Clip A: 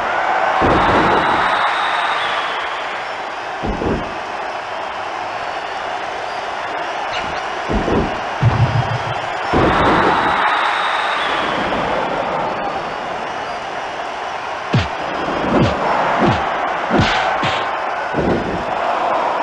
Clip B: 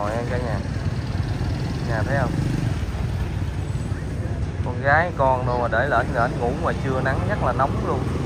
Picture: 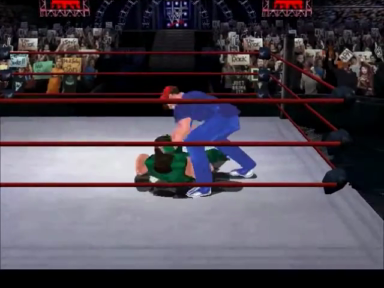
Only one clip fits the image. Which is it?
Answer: A